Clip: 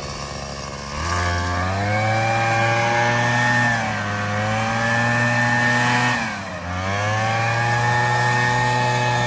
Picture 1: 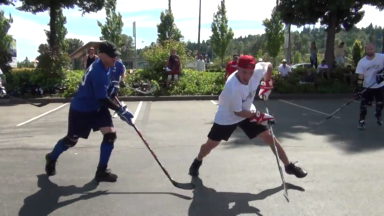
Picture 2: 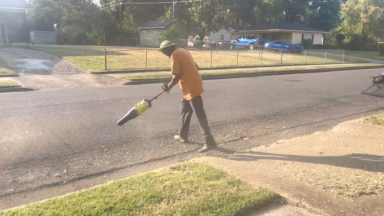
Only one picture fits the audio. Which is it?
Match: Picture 2